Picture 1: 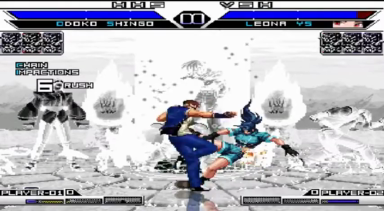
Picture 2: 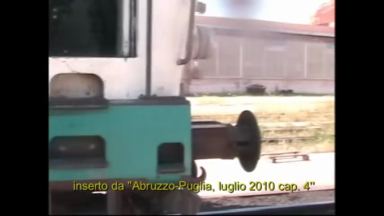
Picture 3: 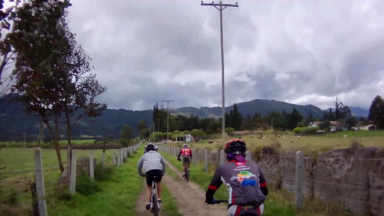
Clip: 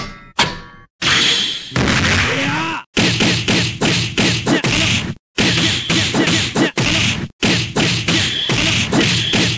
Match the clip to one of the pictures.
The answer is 1